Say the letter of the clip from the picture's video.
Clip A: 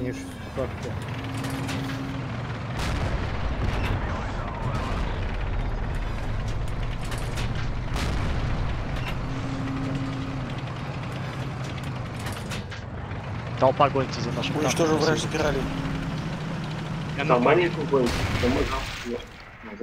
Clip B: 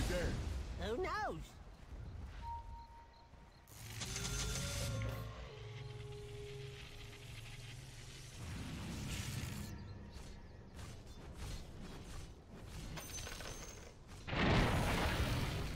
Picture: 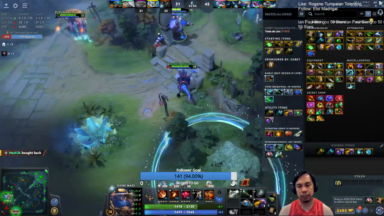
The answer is B